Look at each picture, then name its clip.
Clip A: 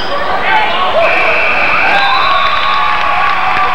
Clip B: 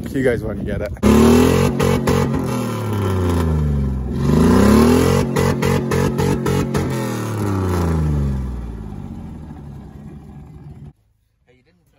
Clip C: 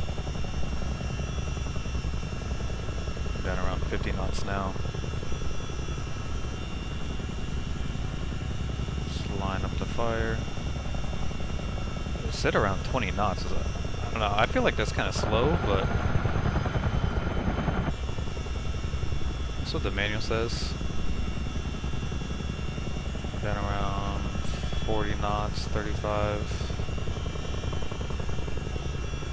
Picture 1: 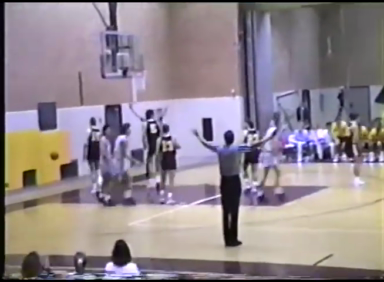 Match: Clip A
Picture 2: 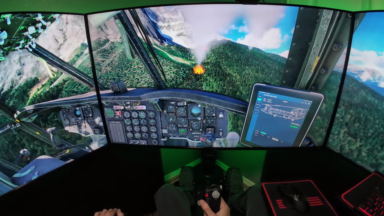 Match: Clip C